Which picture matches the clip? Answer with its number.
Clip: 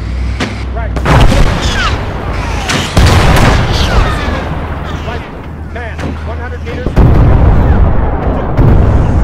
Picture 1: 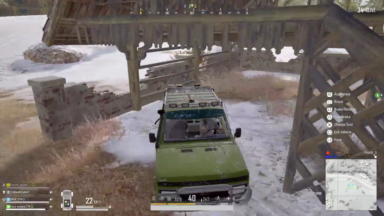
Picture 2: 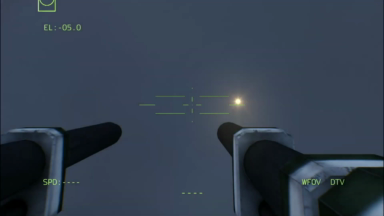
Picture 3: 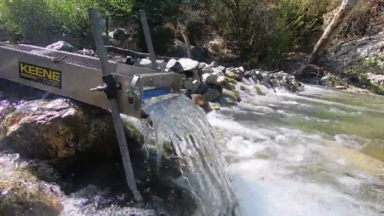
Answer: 2